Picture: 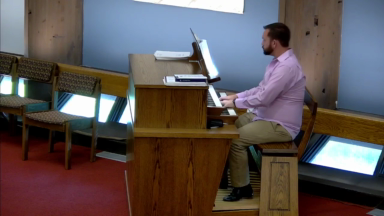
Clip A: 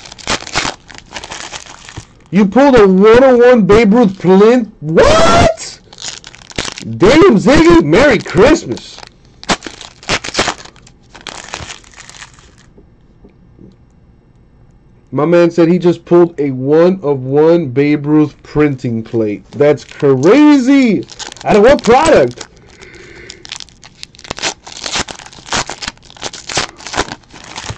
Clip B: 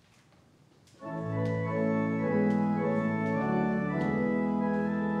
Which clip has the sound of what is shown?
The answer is B